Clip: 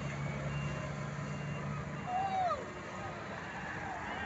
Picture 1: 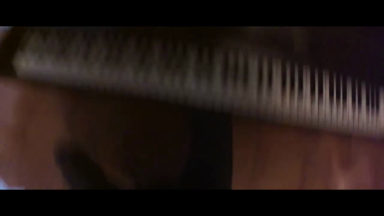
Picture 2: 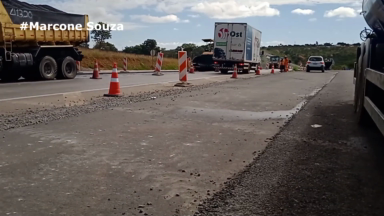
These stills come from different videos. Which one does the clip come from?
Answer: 2